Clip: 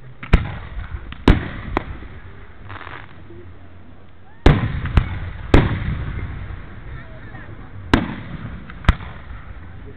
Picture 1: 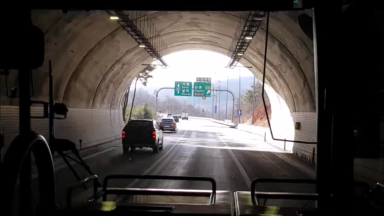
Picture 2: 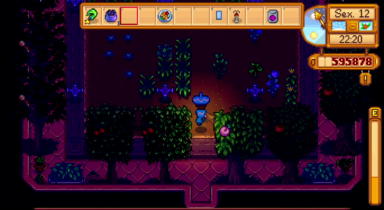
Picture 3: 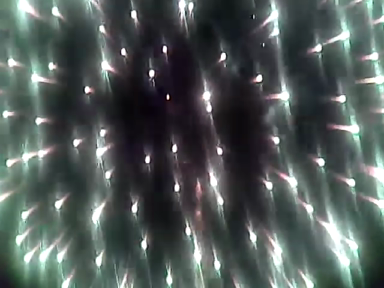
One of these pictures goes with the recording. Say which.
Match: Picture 3